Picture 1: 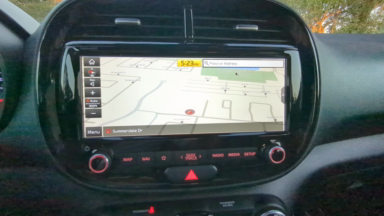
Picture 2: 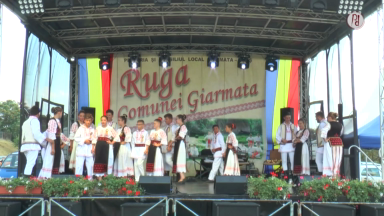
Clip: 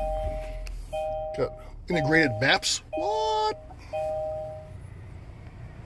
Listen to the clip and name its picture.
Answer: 1